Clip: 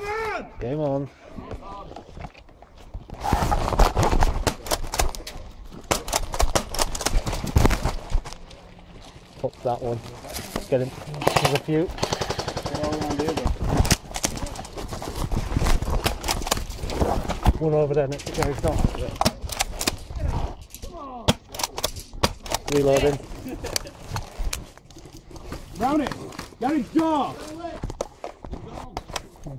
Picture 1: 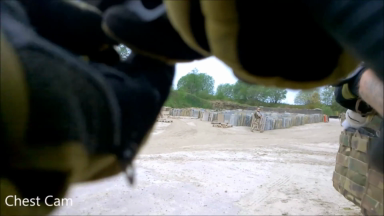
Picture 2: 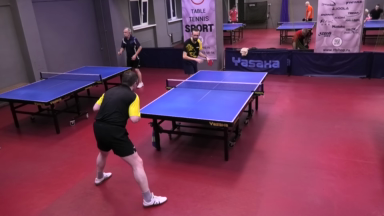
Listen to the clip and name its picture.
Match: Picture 1